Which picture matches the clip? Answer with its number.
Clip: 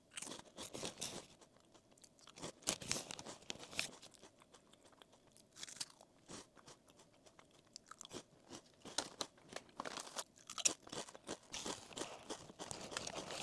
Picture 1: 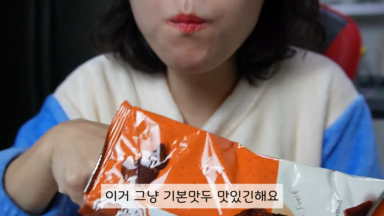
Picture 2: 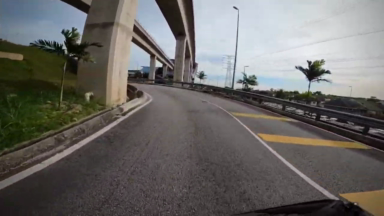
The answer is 1